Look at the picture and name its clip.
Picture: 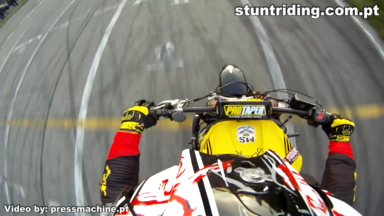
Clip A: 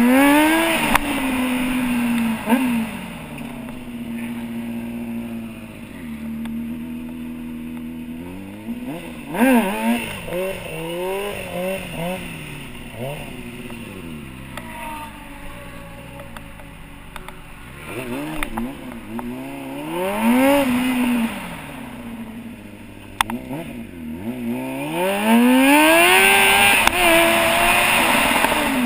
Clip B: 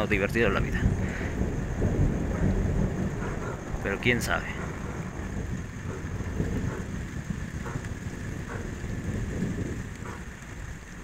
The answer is A